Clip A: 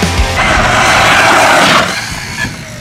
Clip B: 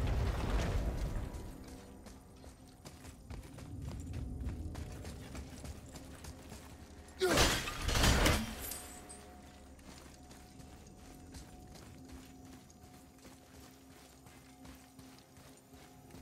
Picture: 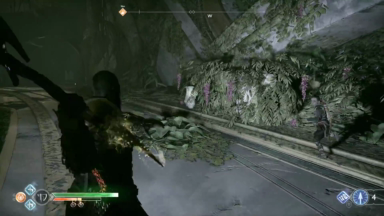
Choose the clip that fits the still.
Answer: B